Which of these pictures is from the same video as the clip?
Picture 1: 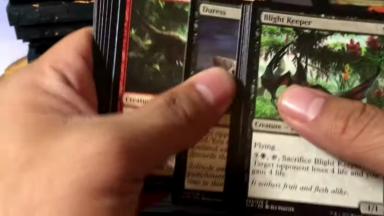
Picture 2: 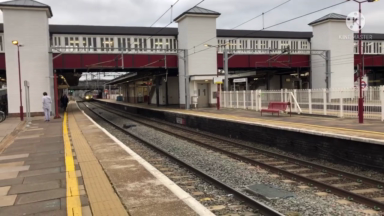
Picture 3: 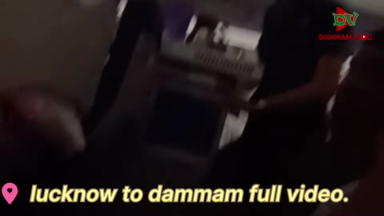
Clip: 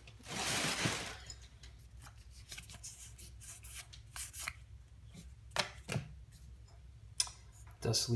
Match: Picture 1